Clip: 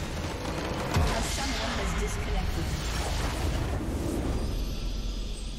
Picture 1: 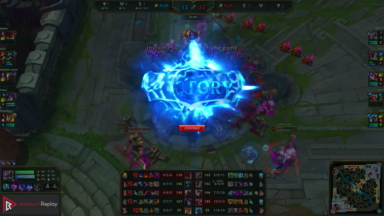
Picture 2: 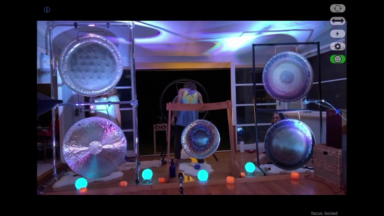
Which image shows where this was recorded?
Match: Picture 1